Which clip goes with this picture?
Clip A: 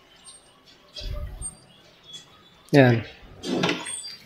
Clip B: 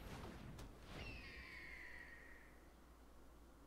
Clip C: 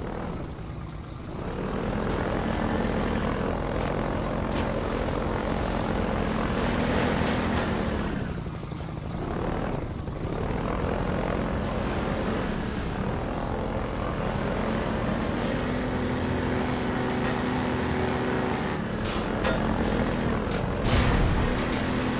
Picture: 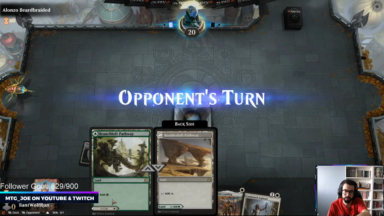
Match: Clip B